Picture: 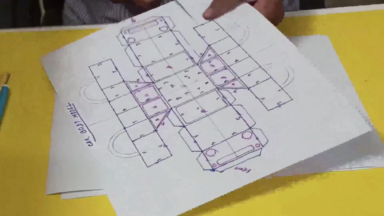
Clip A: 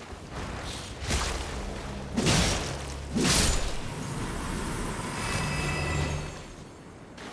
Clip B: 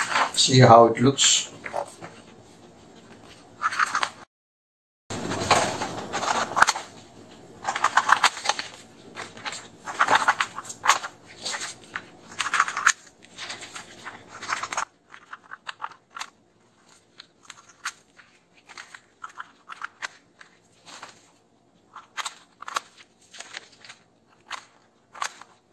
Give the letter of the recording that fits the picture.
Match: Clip B